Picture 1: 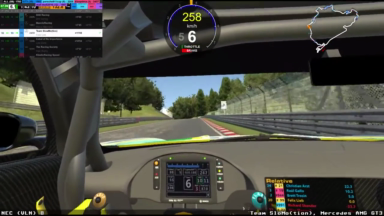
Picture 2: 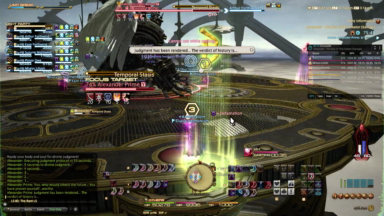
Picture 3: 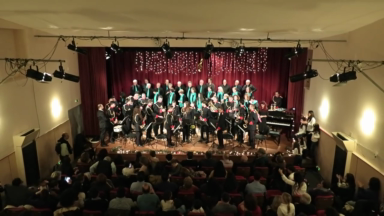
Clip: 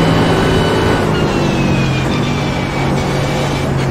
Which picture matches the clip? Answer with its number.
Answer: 1